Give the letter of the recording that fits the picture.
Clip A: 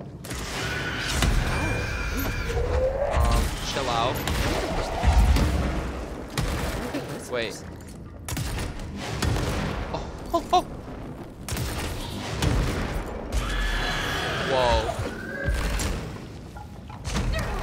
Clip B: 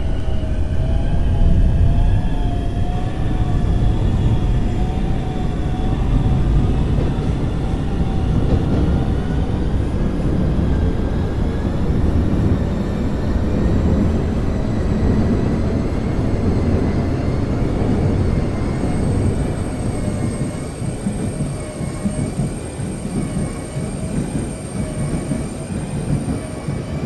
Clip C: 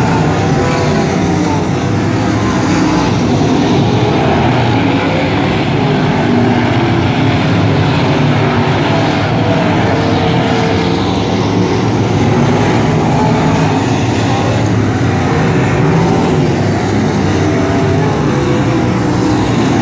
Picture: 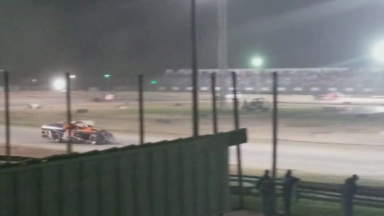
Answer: C